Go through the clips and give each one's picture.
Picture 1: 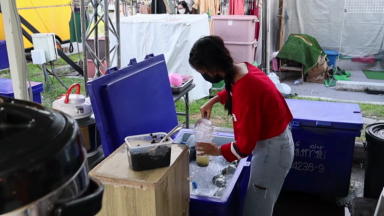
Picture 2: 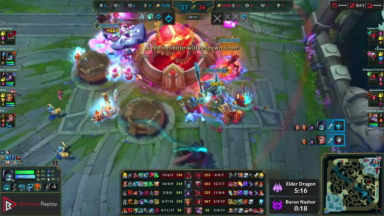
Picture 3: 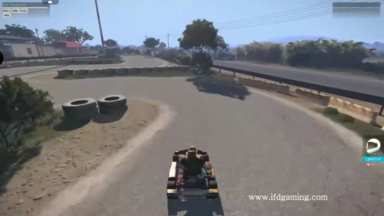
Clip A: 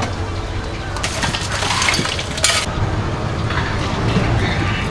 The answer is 1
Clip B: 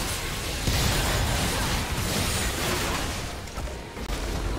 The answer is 2